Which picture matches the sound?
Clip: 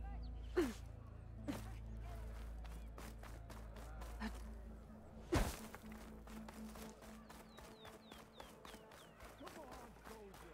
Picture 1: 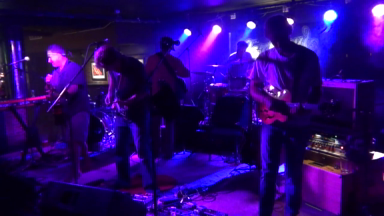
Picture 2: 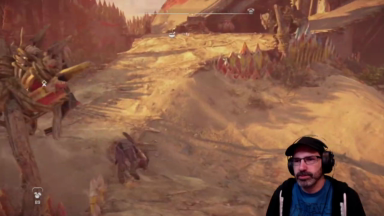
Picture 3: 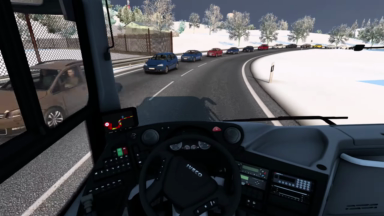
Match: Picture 2